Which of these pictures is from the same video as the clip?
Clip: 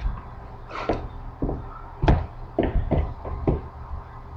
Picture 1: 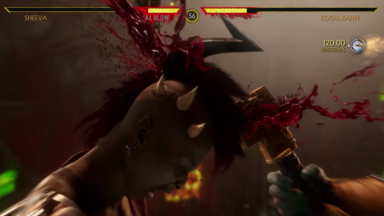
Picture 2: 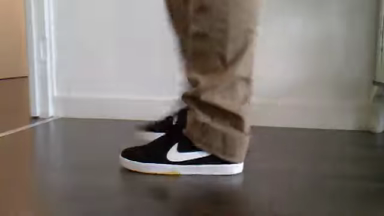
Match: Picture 2